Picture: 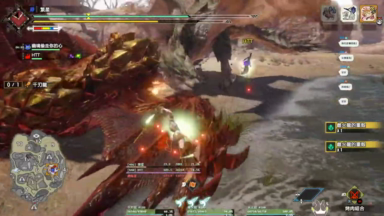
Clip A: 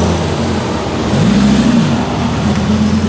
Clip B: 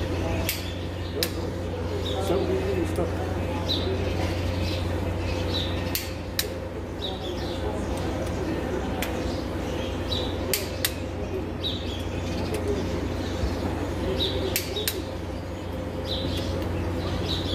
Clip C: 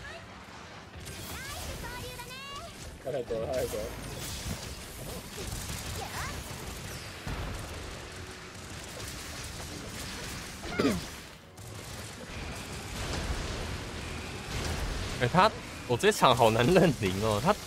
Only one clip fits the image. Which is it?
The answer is C